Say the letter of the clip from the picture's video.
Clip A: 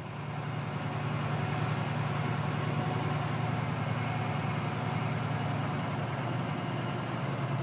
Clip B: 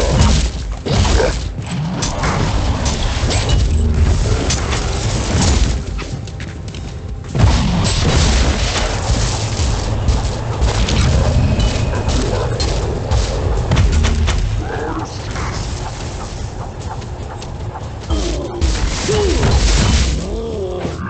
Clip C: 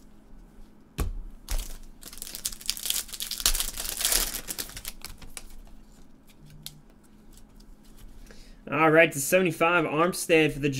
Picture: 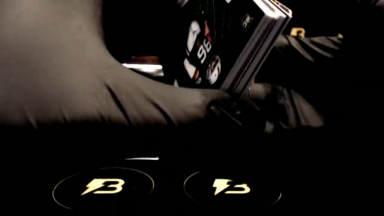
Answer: C